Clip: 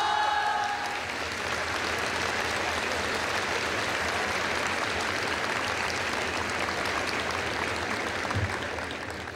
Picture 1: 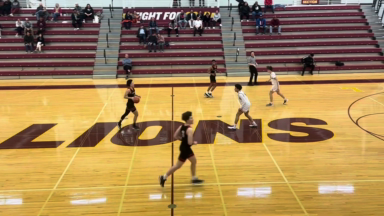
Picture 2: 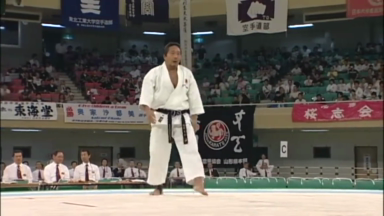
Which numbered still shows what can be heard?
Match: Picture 2